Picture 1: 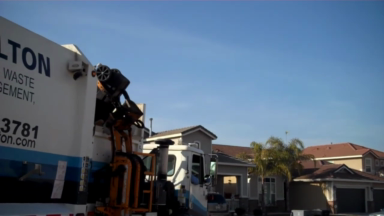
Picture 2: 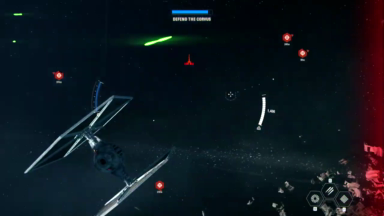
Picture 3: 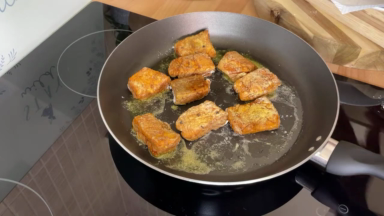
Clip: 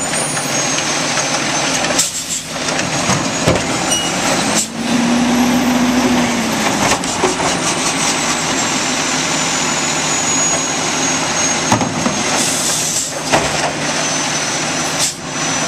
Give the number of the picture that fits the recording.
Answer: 1